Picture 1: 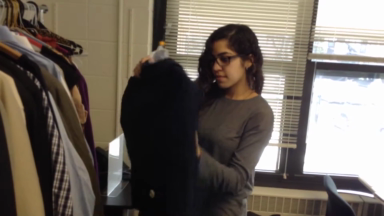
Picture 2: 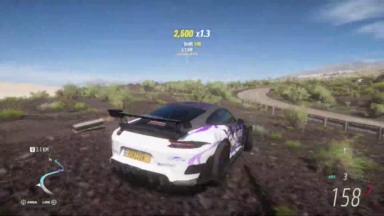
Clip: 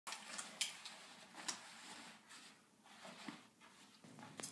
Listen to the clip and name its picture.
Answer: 1